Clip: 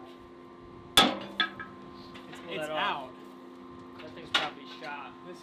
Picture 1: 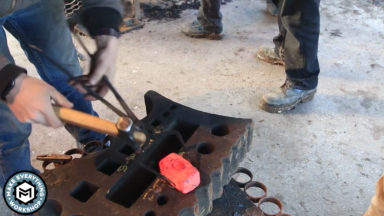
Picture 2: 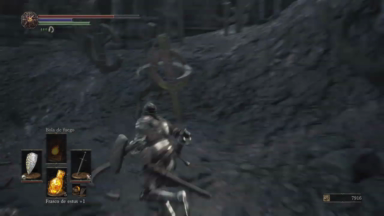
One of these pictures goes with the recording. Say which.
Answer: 1